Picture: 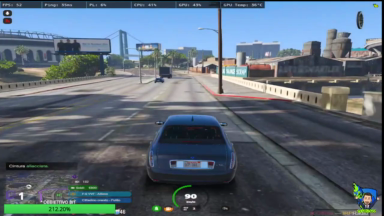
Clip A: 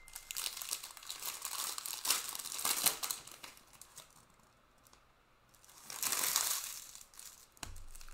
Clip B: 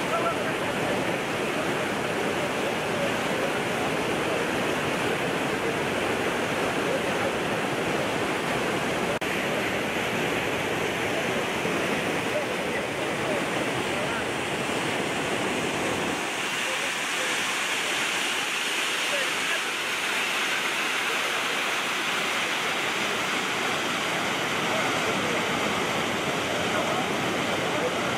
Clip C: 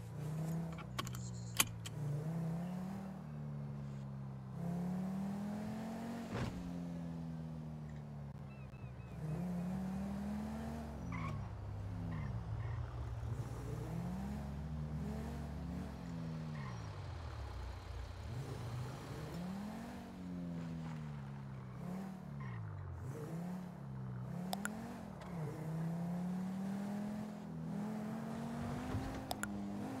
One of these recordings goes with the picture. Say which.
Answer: C